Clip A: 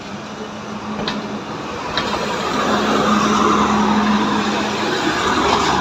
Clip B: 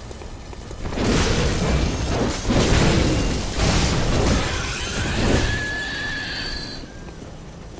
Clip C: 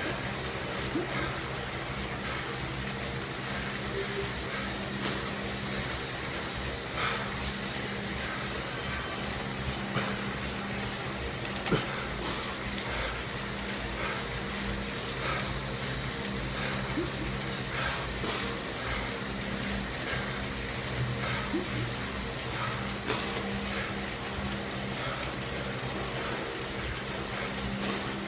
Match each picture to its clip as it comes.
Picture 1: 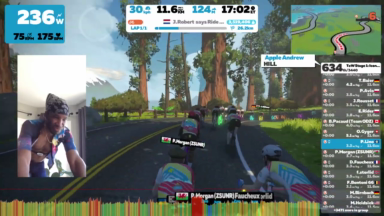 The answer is C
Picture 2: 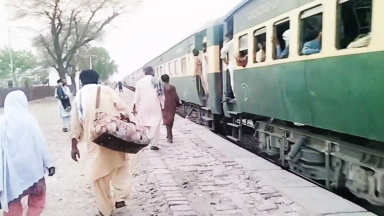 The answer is A